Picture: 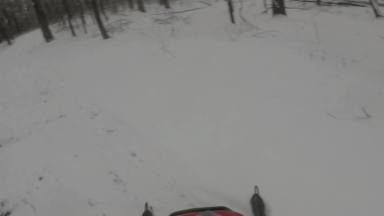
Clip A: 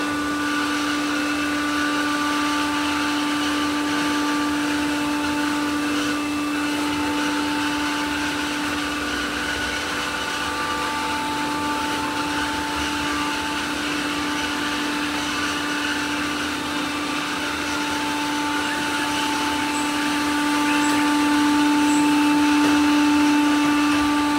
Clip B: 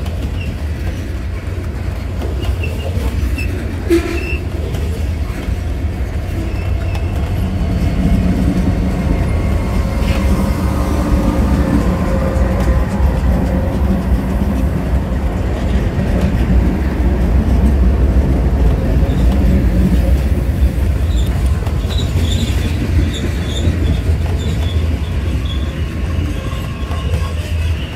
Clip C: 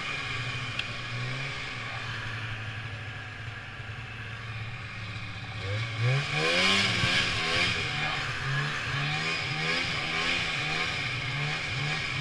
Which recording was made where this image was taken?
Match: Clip C